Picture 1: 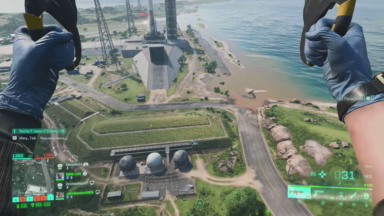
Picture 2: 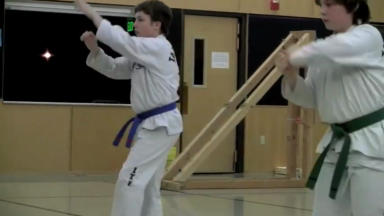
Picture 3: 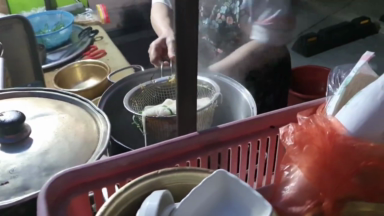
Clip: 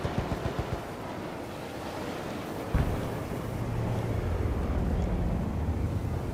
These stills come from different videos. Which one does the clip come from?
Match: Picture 1